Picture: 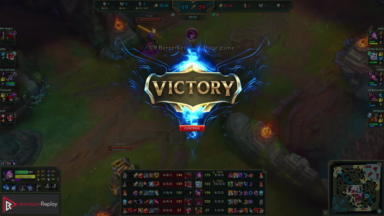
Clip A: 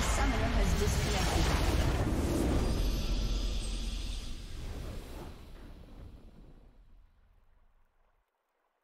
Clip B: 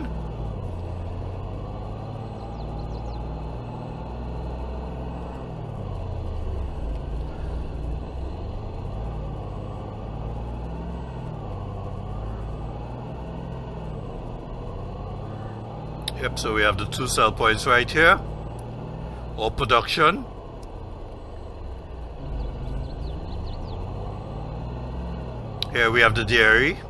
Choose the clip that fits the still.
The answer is A